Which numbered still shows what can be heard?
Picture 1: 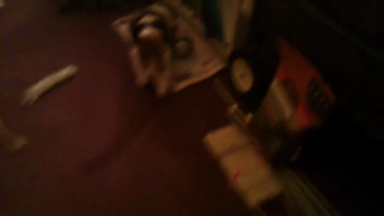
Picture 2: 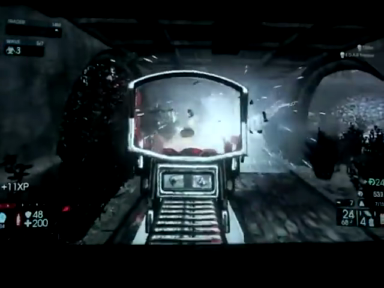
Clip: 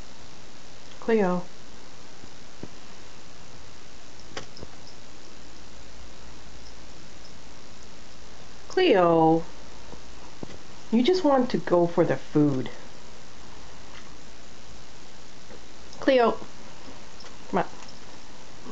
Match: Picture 1